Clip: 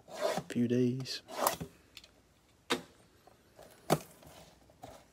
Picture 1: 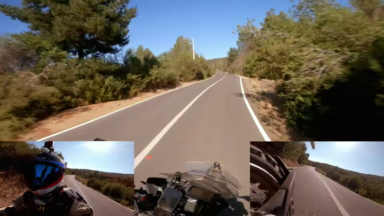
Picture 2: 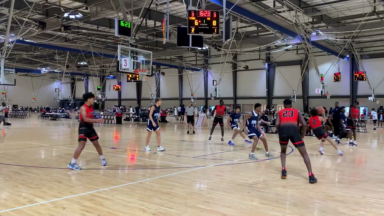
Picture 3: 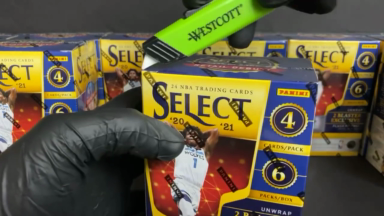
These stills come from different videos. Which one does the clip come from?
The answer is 3